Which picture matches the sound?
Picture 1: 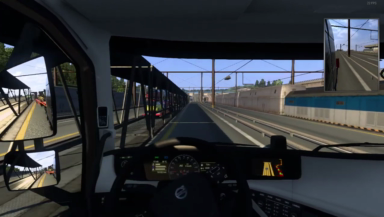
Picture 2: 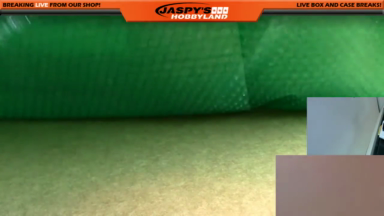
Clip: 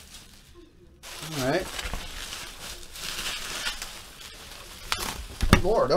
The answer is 2